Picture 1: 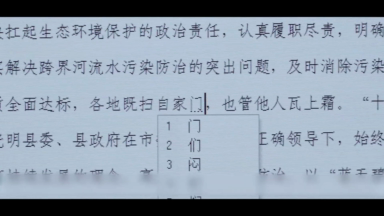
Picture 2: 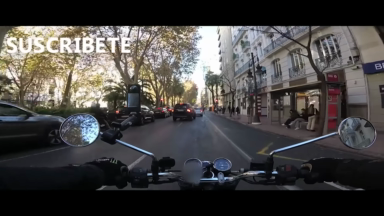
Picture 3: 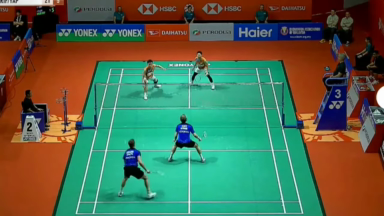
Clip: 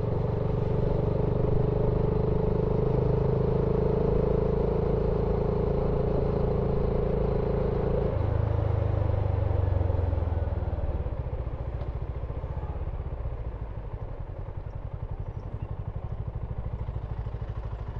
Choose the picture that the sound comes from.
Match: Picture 2